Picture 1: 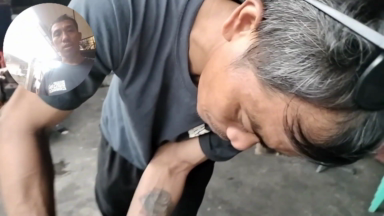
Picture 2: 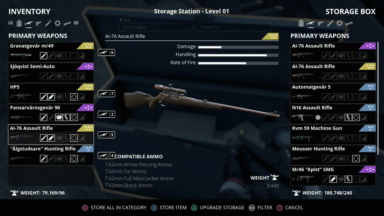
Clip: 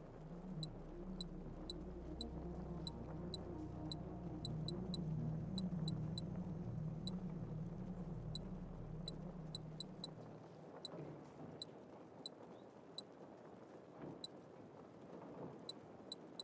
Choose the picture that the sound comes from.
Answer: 2